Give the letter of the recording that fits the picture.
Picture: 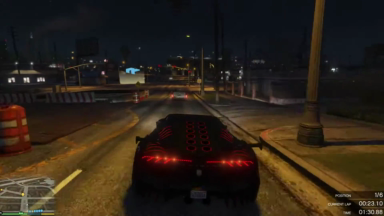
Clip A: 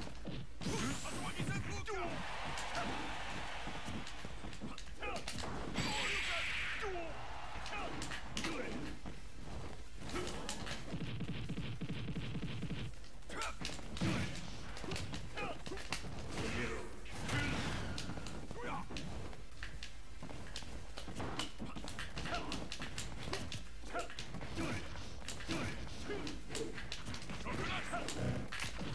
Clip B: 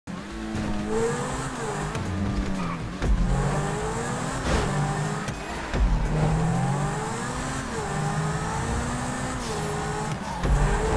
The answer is B